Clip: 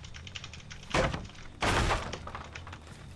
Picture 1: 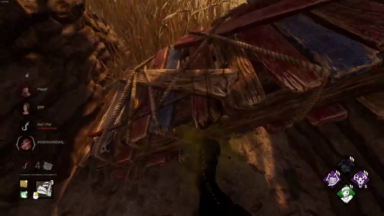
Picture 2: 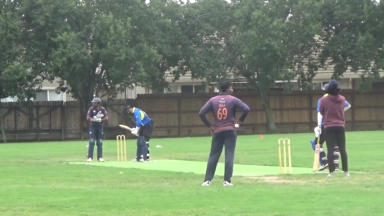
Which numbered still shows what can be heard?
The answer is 1